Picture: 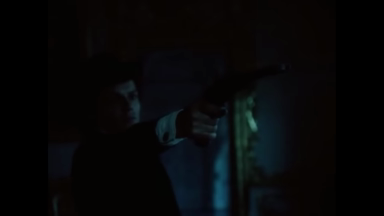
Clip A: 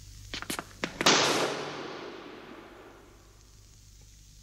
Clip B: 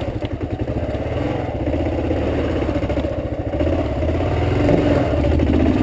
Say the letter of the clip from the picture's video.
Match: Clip A